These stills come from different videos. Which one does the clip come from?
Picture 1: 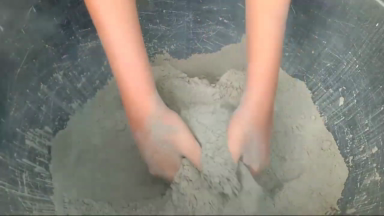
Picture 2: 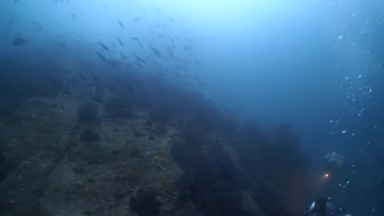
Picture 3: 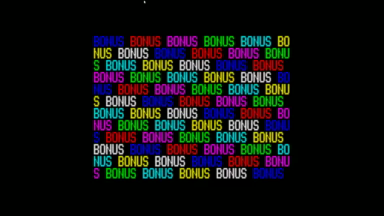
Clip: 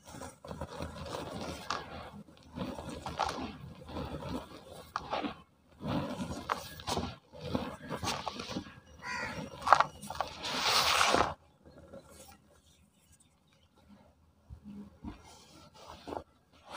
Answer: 1